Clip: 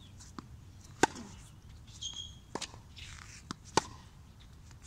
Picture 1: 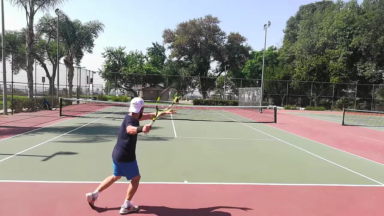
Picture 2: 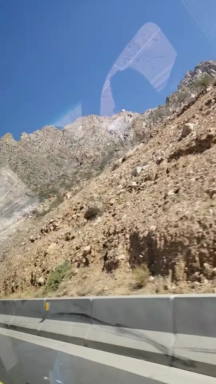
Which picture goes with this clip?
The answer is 1